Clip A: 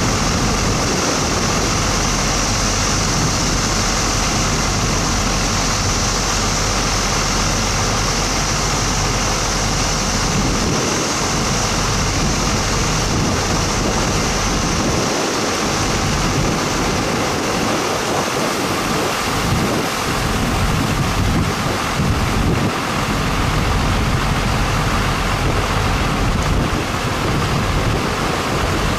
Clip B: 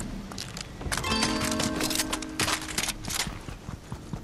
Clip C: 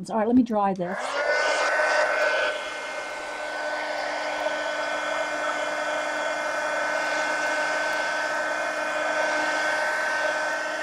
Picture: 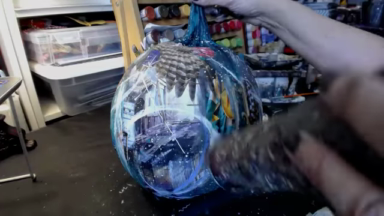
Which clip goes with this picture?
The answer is C